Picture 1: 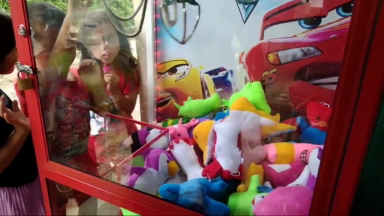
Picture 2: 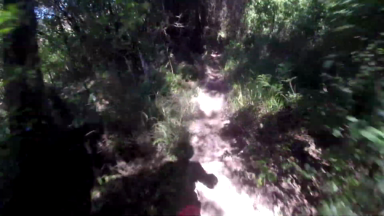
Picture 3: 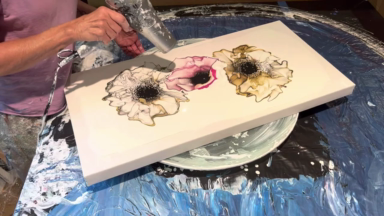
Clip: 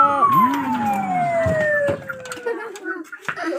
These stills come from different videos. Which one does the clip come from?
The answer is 1